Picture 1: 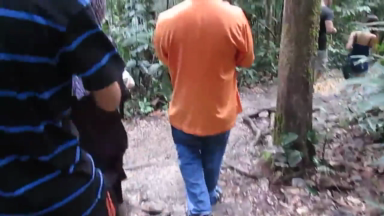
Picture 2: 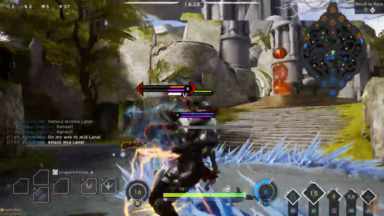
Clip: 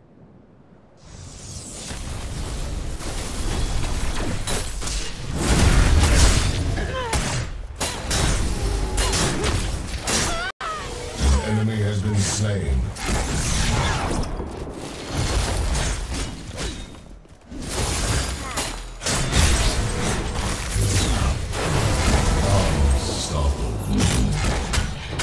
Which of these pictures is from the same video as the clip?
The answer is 2